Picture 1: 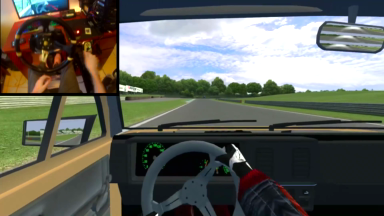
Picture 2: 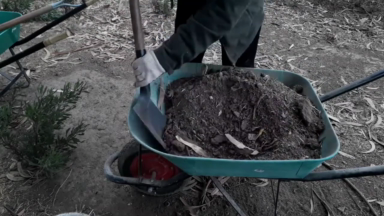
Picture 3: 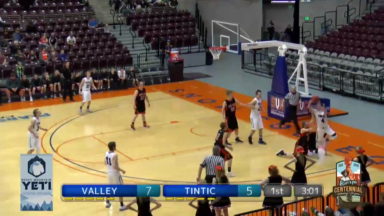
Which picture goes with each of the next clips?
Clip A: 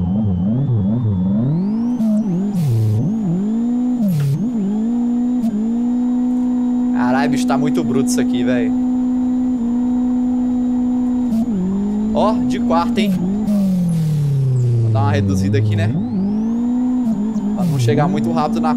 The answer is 1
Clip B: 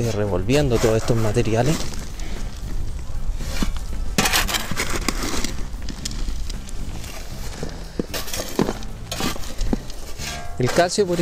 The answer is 2